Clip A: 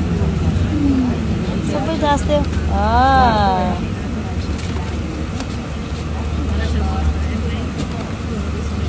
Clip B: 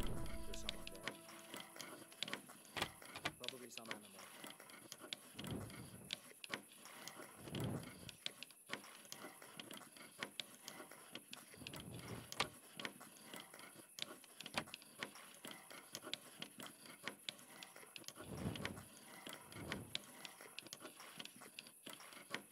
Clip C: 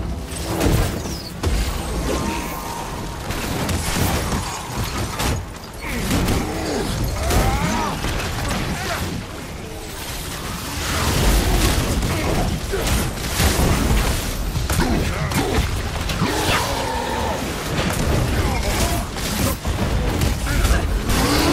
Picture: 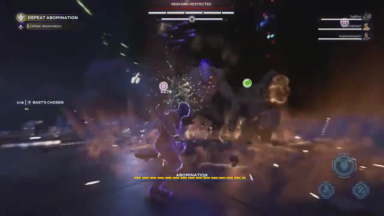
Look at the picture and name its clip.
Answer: C